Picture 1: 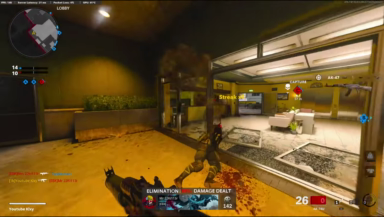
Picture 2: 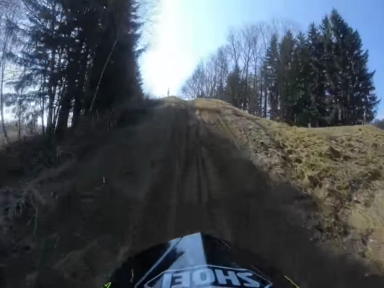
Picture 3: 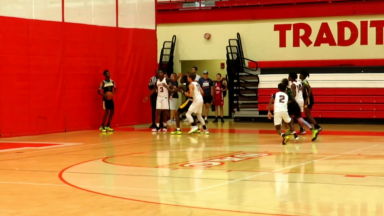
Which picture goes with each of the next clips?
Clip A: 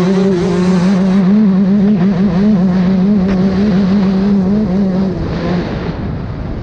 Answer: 2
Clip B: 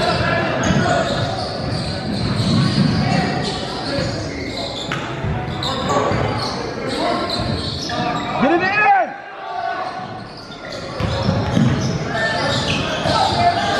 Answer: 3